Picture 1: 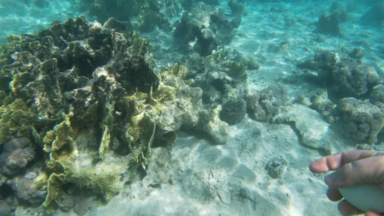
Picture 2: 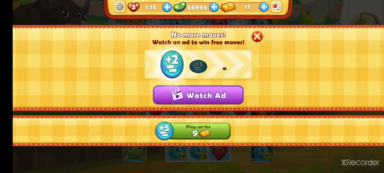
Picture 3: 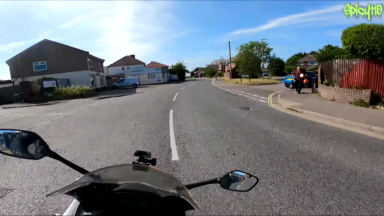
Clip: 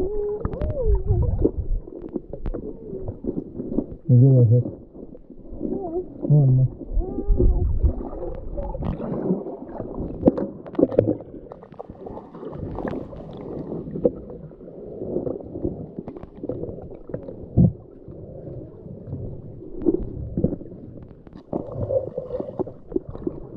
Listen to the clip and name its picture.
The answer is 1